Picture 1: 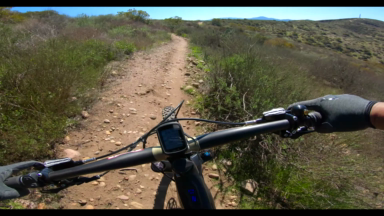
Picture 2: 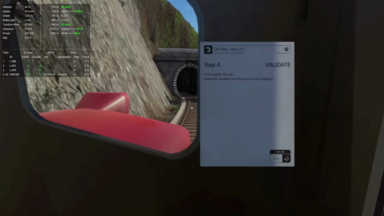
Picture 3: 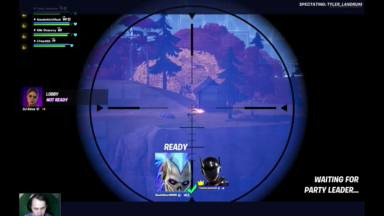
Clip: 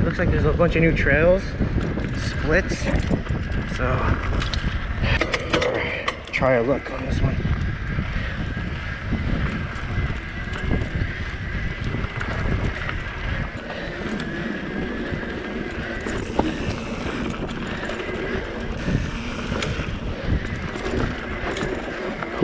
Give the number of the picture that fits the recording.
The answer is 1